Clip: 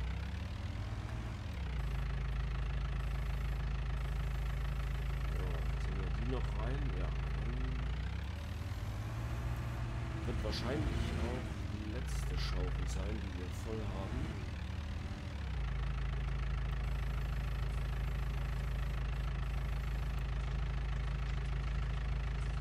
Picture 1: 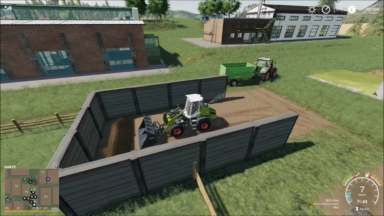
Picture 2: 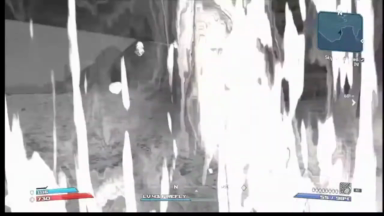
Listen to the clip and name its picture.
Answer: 1